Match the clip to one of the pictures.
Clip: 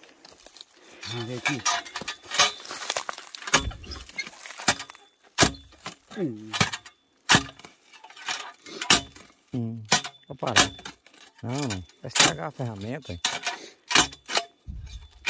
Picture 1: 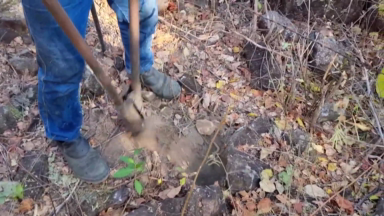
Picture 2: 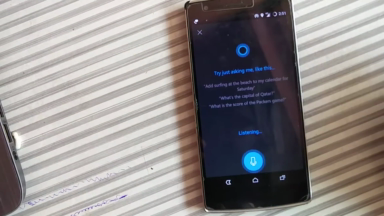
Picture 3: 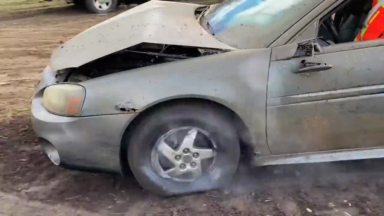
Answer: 1